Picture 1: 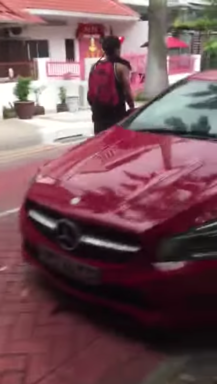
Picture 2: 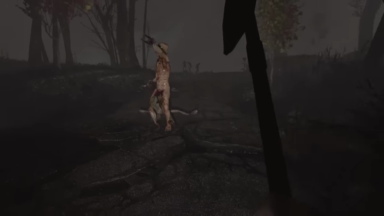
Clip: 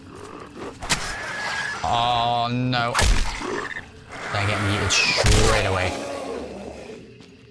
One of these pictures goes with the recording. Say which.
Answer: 2